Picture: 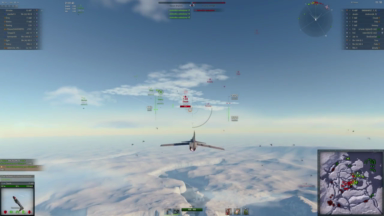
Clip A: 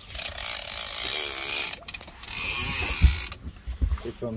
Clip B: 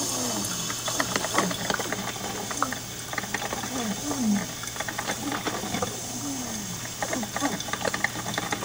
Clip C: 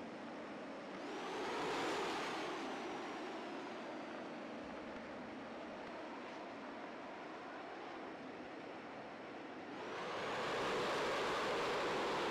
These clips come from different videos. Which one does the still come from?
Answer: C